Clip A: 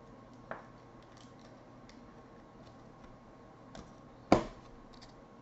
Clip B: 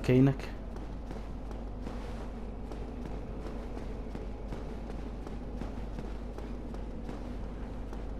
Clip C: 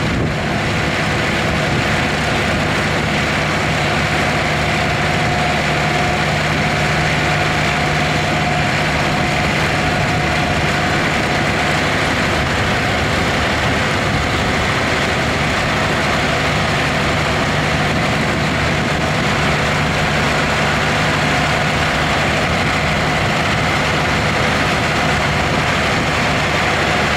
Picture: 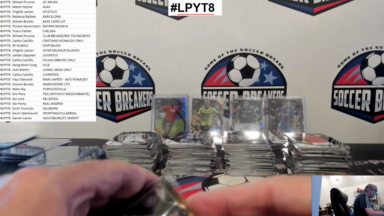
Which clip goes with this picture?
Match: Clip A